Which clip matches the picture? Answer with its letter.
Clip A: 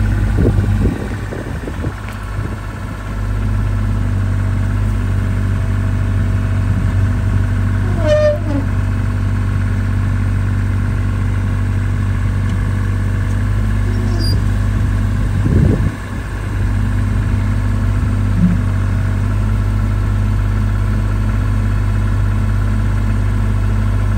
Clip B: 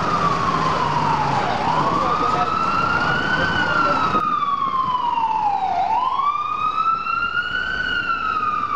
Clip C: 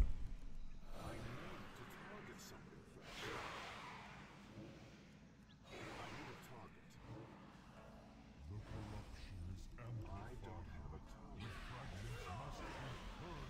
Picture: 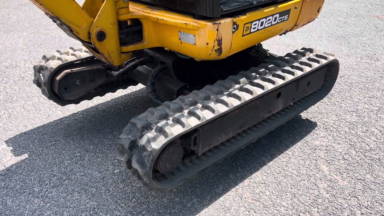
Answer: A